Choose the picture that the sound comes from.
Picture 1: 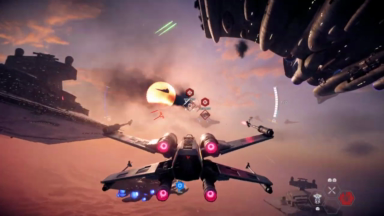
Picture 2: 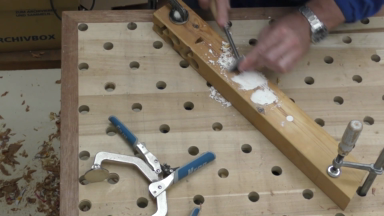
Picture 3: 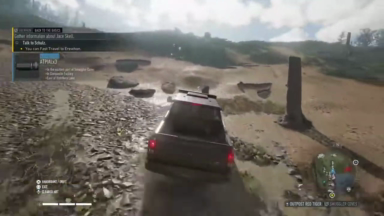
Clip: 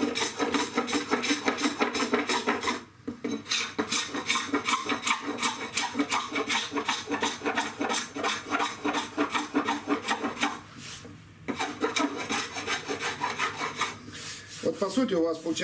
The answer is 2